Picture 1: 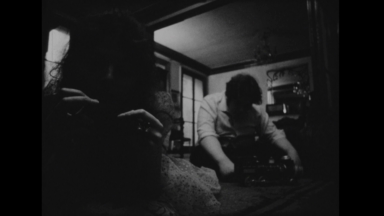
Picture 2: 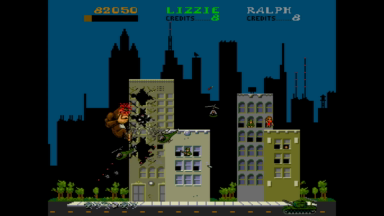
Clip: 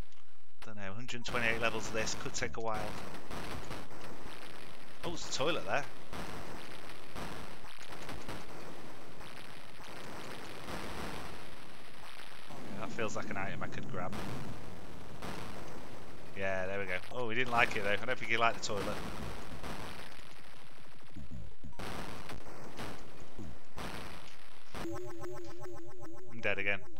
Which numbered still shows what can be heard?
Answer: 2